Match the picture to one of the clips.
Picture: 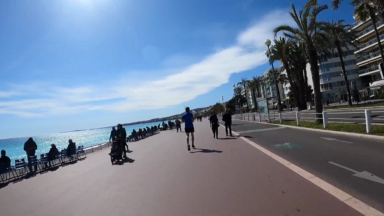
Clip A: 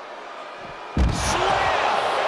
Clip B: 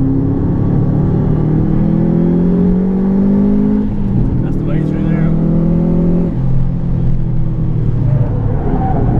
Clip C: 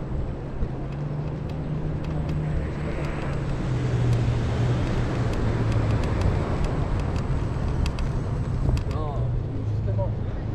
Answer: C